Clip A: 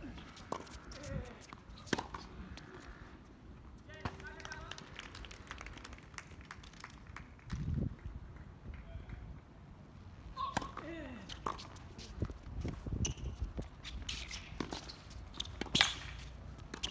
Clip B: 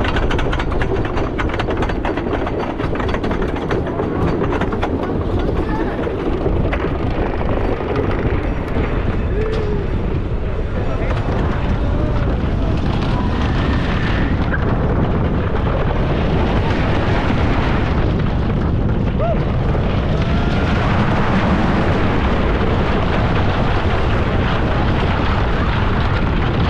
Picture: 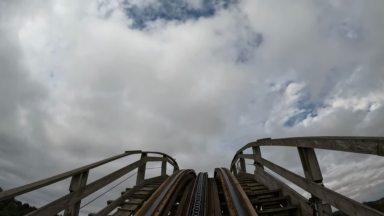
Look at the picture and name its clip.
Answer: B